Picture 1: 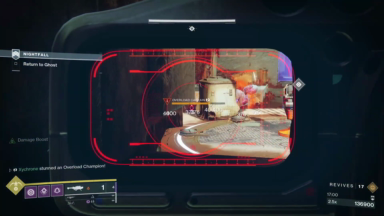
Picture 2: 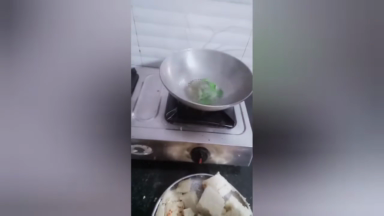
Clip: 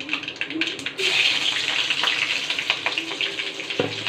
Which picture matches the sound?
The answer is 2